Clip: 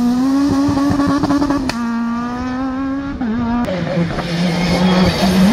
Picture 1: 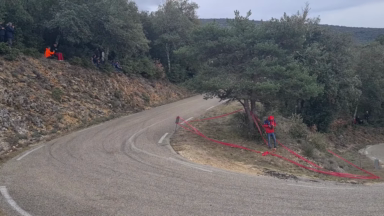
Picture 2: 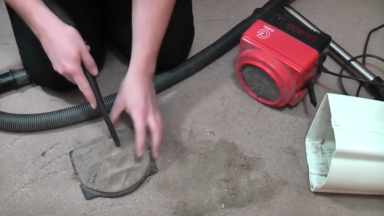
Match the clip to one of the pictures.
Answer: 1